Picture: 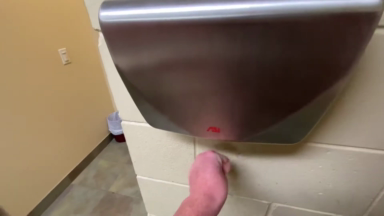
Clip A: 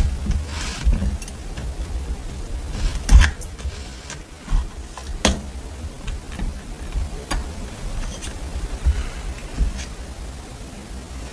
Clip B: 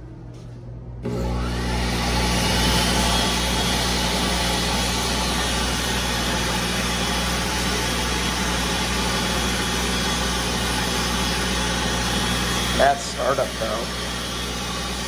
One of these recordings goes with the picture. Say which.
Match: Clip B